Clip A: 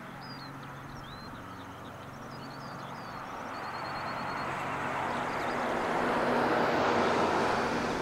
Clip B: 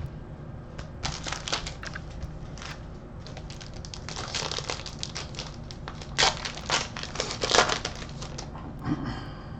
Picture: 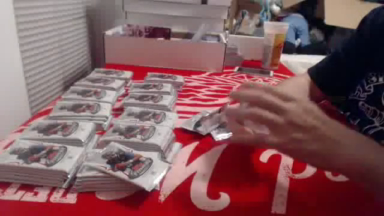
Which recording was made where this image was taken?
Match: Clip B